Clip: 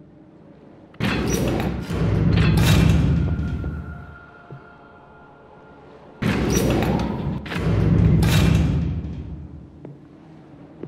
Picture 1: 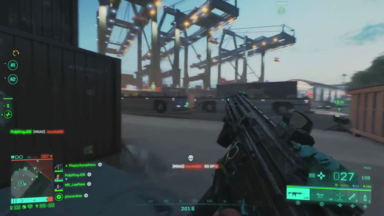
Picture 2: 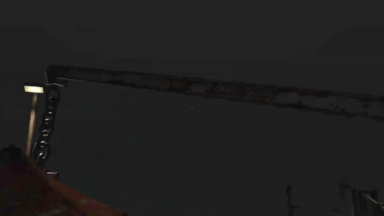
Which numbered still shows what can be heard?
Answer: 2